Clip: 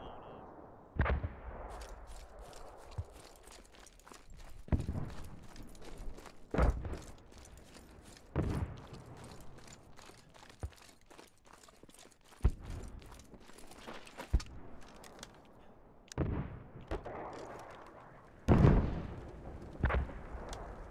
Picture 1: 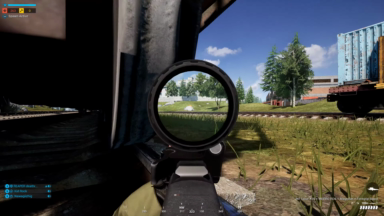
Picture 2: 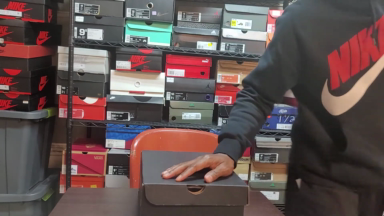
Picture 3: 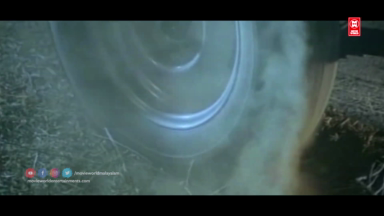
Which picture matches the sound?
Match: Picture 1